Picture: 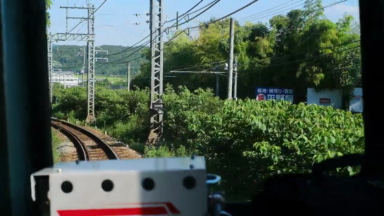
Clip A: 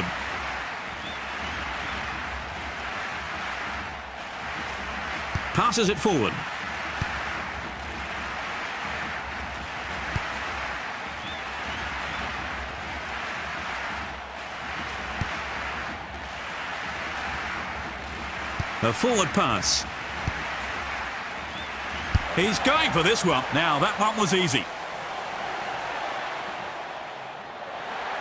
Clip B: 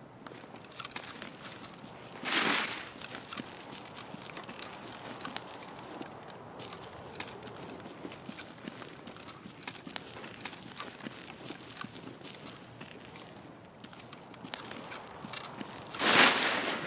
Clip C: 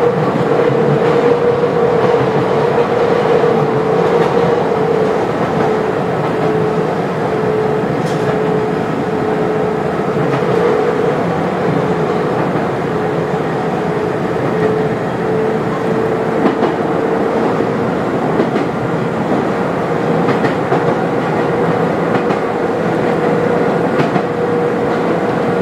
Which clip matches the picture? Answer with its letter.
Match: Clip C